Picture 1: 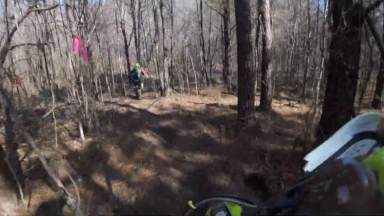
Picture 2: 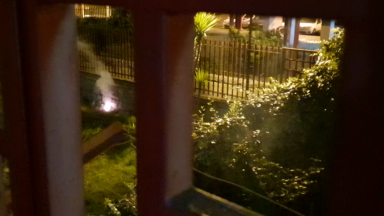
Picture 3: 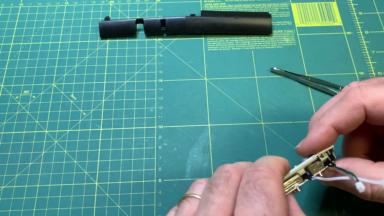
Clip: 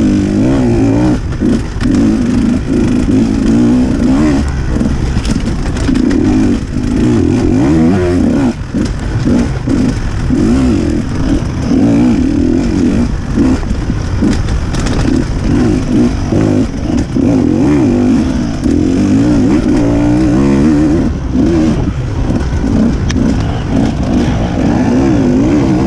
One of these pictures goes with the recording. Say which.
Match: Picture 1